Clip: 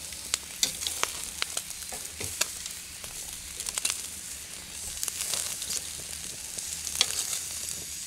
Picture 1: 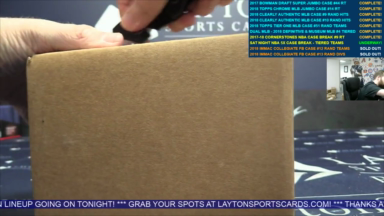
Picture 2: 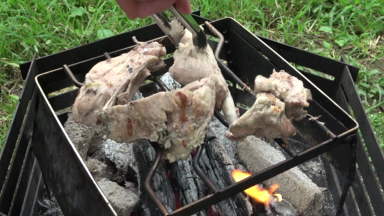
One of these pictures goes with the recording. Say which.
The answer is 2